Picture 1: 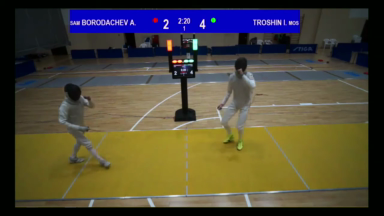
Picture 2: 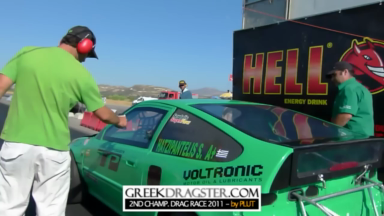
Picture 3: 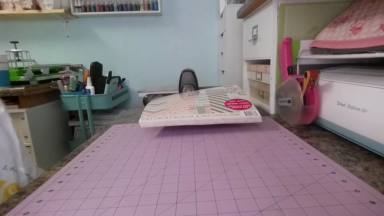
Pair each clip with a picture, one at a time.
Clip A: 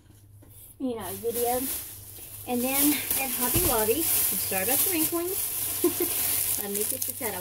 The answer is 3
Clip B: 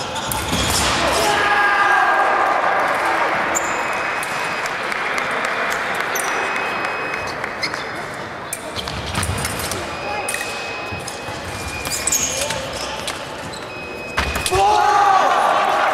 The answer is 1